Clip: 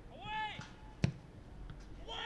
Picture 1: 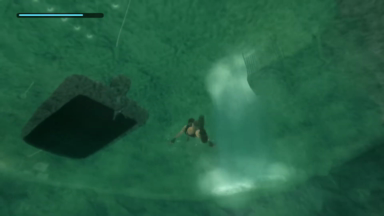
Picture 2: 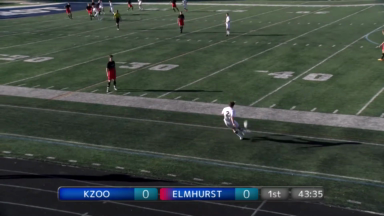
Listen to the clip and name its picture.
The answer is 2